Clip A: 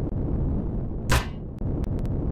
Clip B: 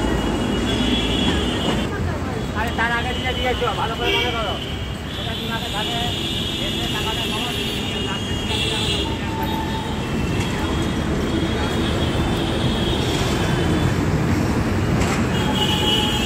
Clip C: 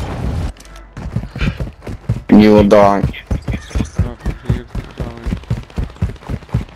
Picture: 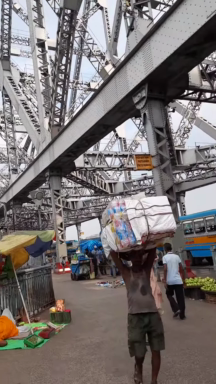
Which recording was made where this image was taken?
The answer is B